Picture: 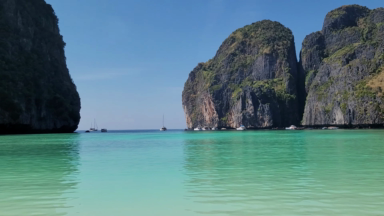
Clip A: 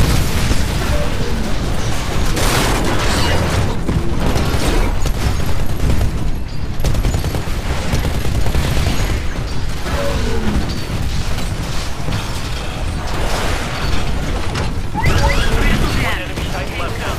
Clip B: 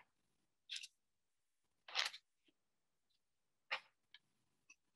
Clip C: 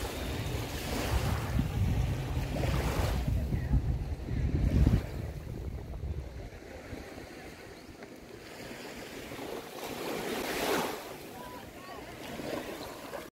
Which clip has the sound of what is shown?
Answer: C